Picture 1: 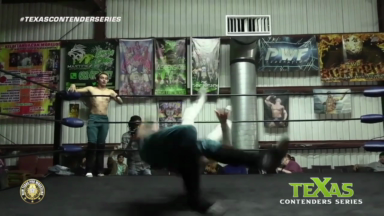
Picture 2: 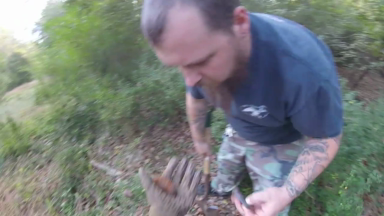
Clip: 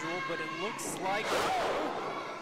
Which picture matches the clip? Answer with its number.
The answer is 1